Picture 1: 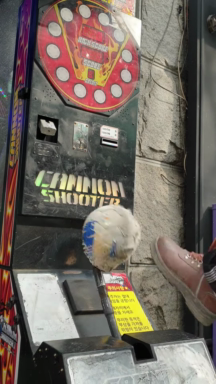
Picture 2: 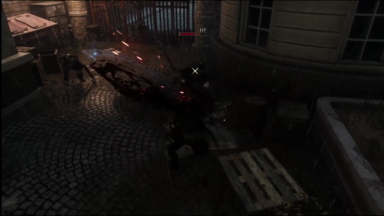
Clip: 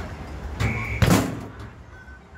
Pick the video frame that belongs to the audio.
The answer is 1